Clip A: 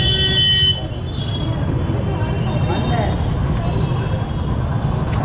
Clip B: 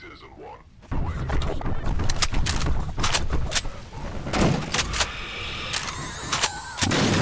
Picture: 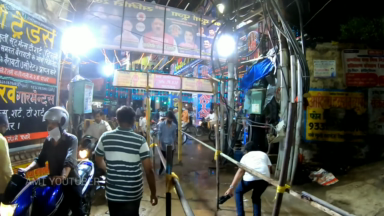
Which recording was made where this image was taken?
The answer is A